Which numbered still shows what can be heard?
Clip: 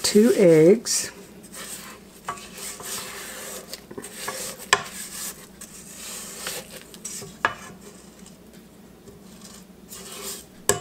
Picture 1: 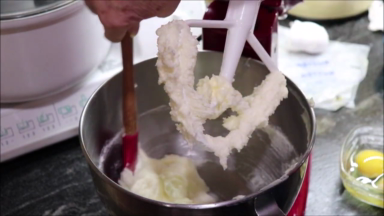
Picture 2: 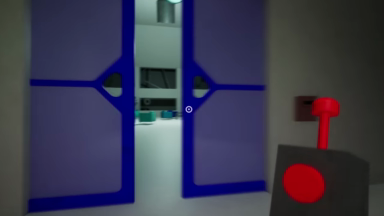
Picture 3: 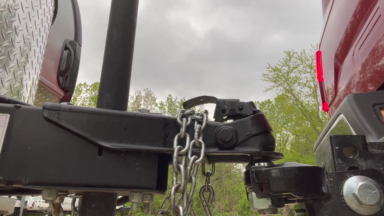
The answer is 1